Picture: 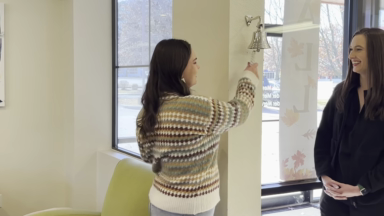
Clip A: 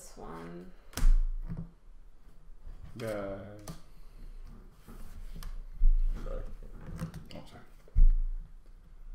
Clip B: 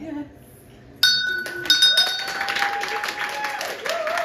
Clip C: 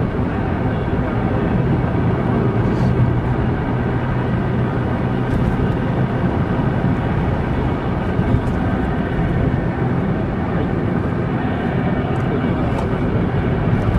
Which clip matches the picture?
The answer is B